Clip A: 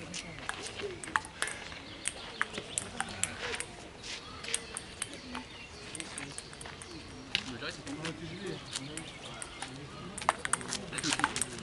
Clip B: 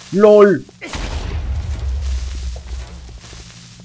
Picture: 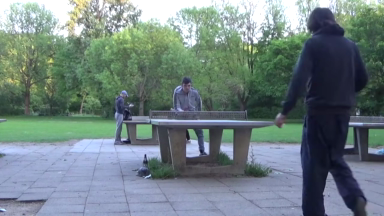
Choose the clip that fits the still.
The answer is A